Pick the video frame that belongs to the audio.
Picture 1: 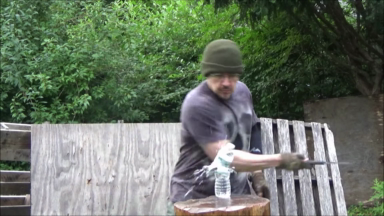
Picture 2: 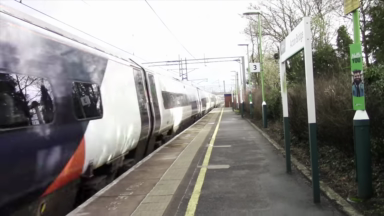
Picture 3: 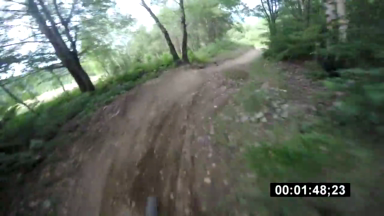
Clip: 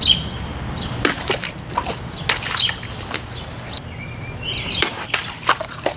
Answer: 1